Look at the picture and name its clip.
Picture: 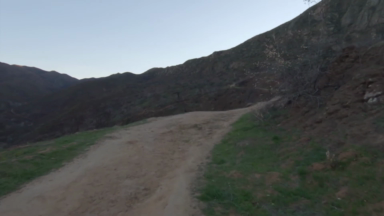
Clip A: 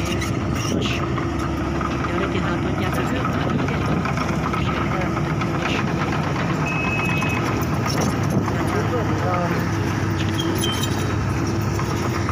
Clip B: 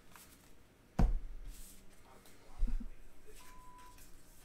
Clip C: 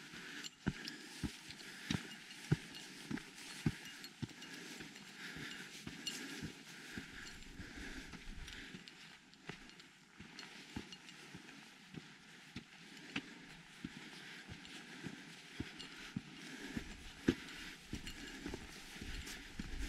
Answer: C